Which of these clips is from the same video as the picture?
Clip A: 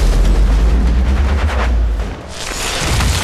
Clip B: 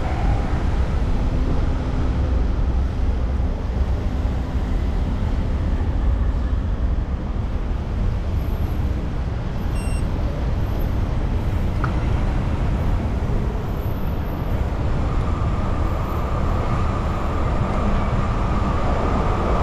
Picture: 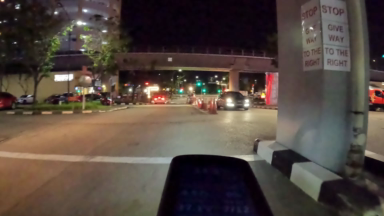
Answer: B